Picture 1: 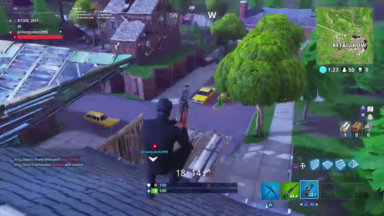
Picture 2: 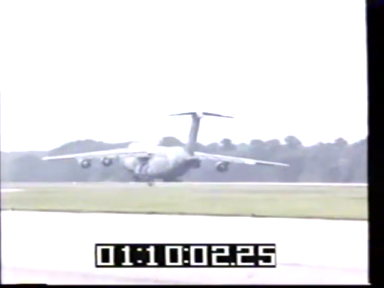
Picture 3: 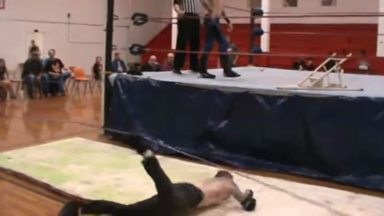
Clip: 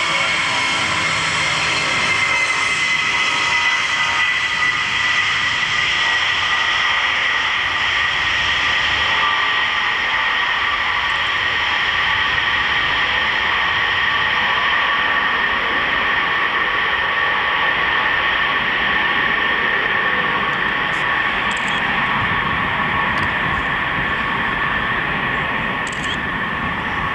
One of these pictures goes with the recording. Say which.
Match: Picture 2